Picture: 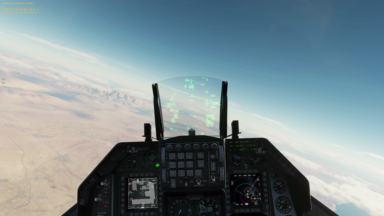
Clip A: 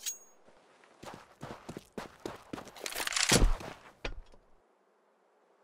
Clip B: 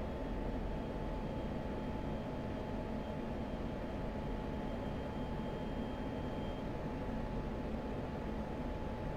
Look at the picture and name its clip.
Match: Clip B